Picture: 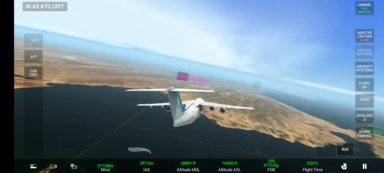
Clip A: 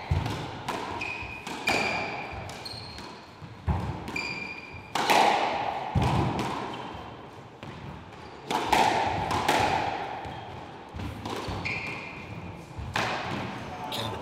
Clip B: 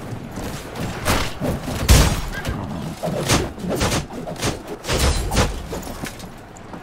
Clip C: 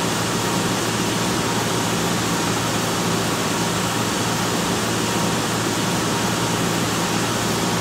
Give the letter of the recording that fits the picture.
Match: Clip C